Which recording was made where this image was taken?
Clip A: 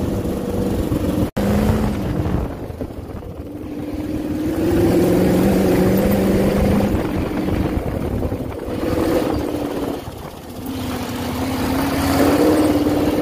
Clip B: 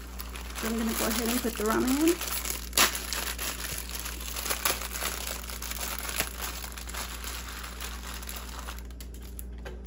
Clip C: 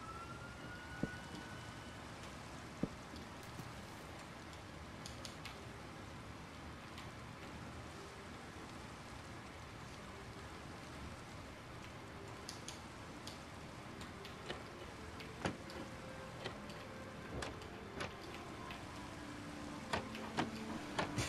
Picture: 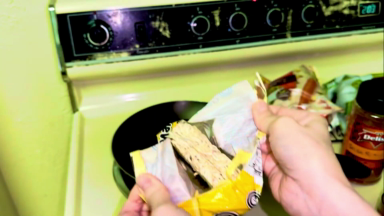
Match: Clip B